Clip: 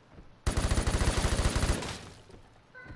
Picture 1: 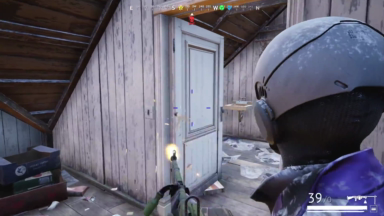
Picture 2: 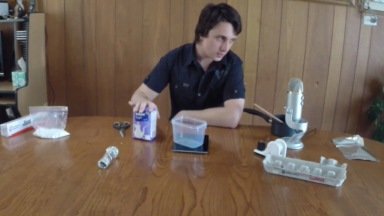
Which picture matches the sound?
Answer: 1